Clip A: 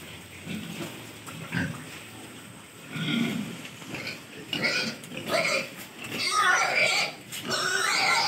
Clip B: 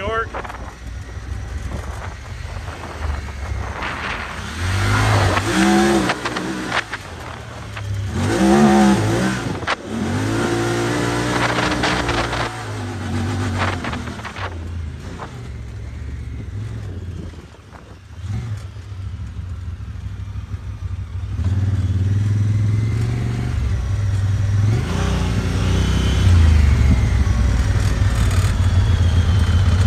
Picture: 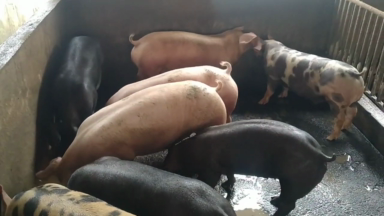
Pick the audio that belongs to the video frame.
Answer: A